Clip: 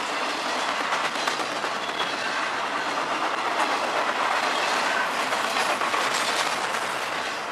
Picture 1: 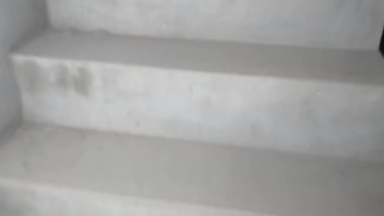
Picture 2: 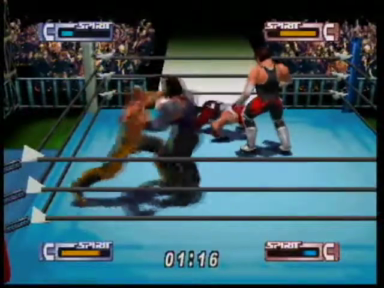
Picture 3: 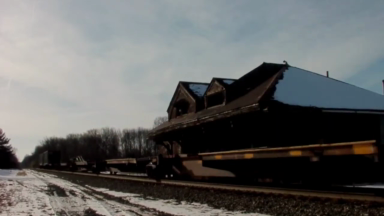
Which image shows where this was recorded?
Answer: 3